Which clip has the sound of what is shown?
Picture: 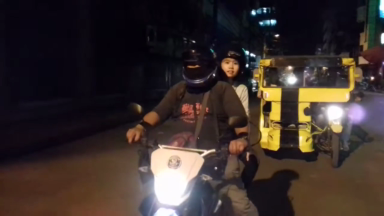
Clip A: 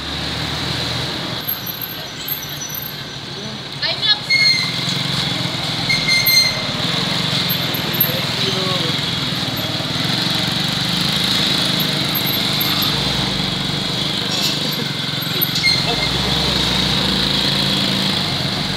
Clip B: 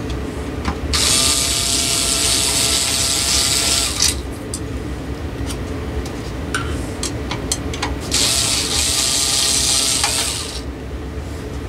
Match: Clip A